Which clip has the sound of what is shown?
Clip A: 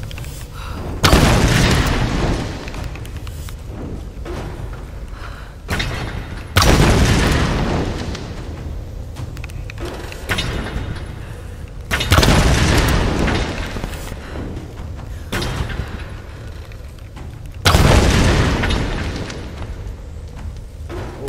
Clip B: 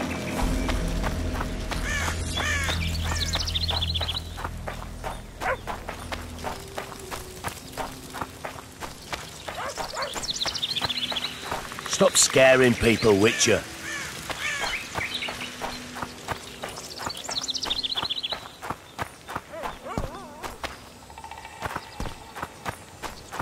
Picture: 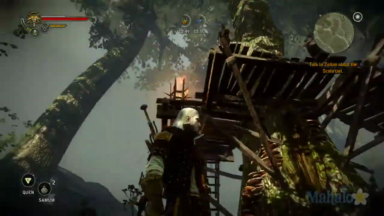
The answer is B